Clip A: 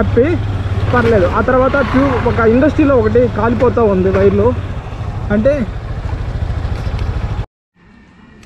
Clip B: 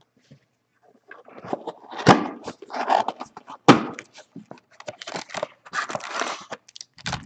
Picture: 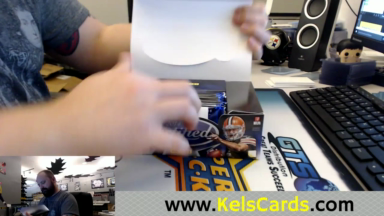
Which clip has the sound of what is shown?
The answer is B